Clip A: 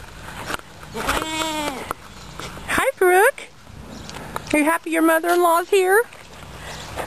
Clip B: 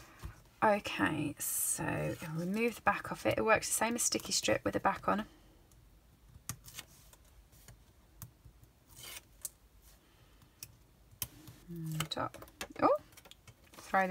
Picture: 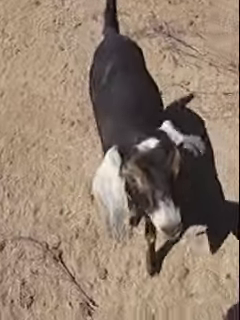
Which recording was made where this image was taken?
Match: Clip A